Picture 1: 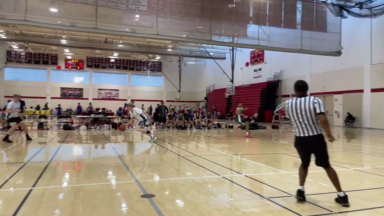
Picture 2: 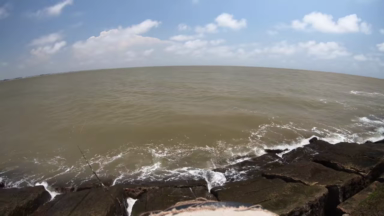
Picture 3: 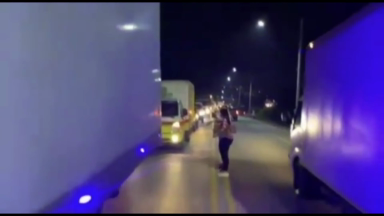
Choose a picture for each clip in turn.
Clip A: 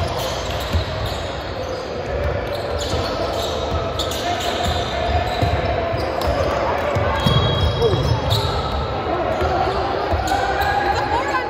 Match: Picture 1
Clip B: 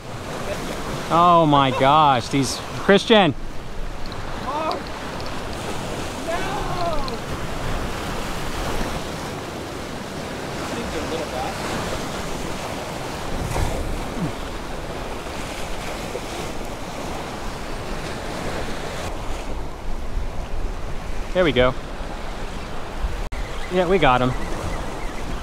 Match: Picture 2